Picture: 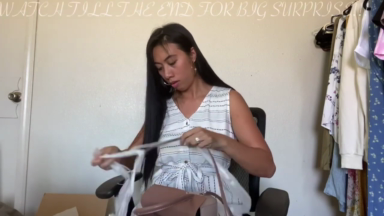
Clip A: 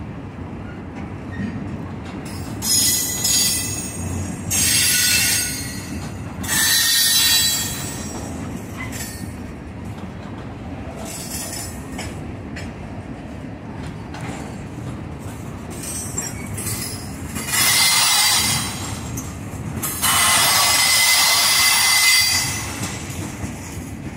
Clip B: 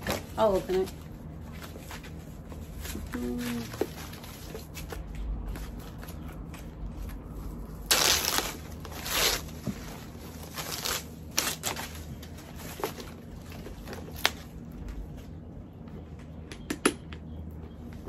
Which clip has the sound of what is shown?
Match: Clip B